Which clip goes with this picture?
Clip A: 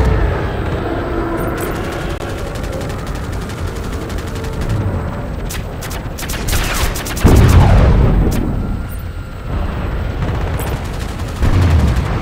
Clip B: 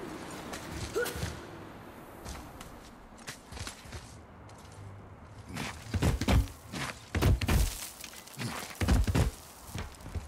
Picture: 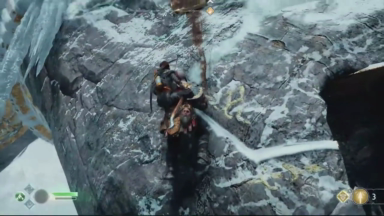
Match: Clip B